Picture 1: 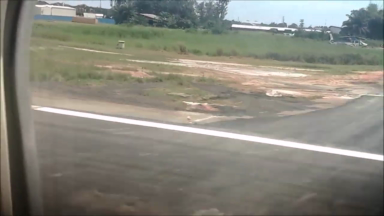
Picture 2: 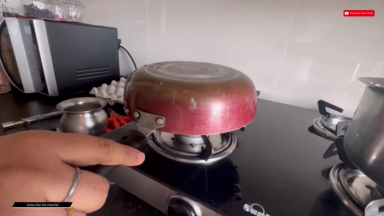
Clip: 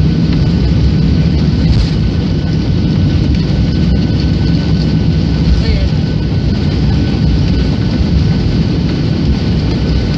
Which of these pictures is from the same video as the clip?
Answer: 1